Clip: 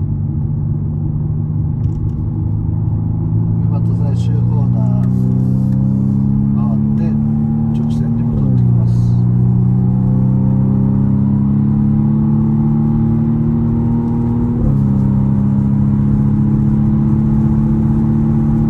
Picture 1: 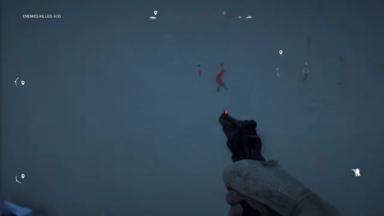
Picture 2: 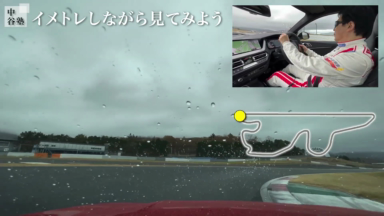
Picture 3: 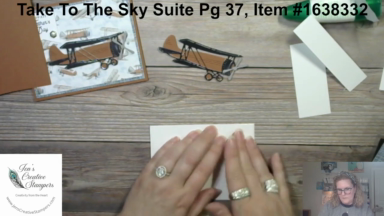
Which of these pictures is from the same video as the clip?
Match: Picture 2